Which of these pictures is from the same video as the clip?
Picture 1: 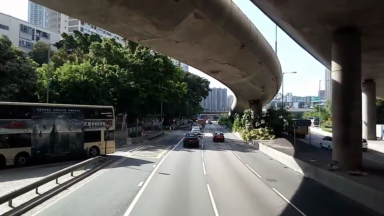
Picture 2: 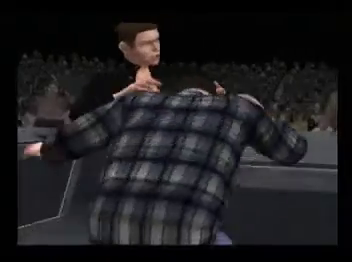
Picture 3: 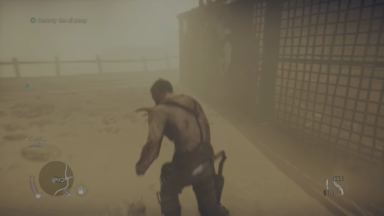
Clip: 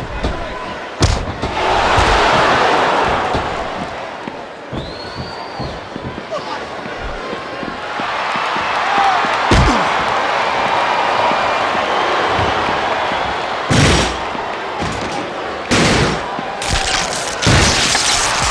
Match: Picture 2